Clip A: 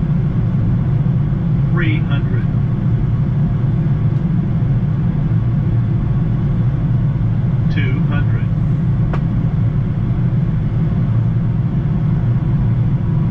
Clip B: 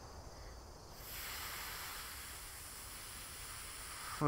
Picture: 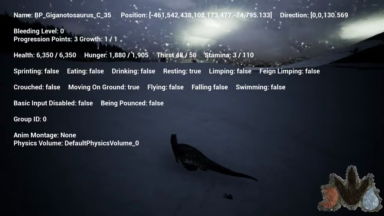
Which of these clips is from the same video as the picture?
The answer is B